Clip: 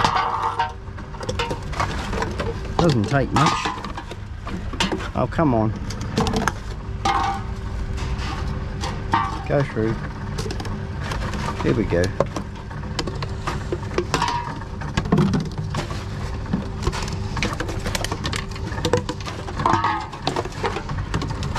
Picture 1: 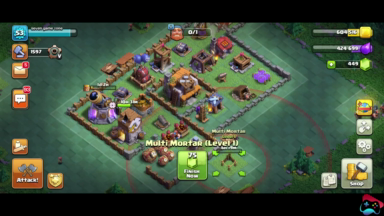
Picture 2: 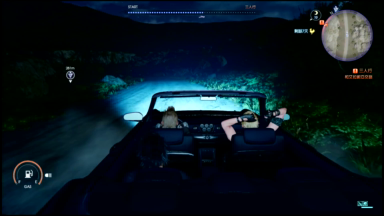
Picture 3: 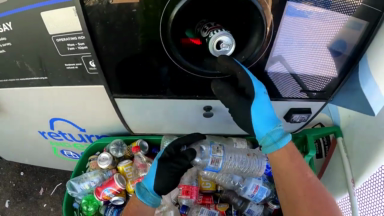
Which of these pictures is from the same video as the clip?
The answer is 3